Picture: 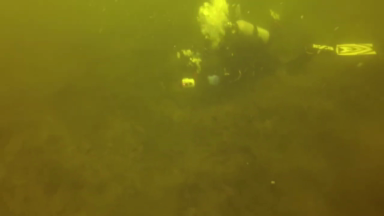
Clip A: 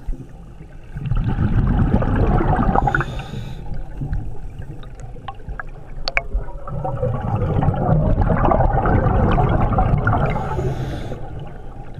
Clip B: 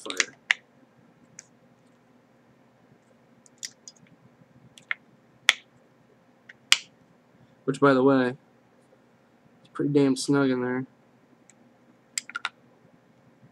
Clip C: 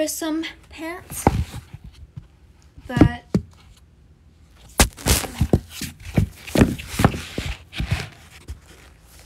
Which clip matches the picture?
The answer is A